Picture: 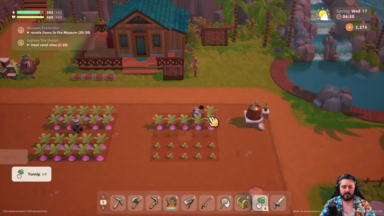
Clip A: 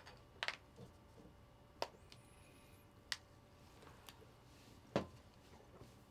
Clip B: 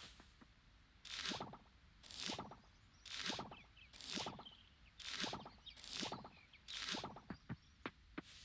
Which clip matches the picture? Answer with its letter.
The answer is B